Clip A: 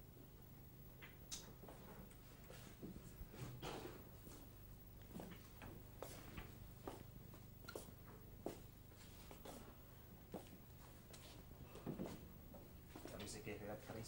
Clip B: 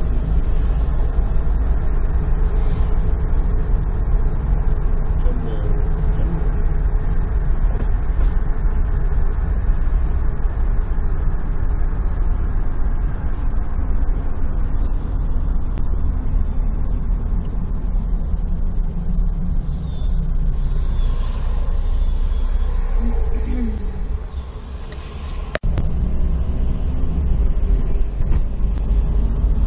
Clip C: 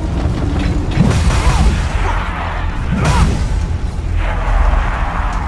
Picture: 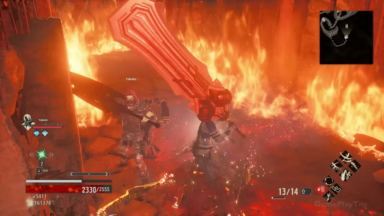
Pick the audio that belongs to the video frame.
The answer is C